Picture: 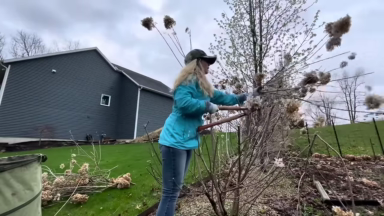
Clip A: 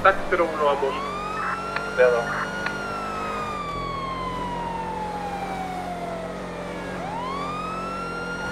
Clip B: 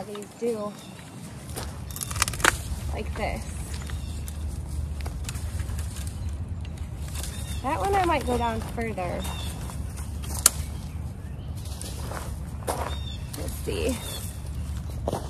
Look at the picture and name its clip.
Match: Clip B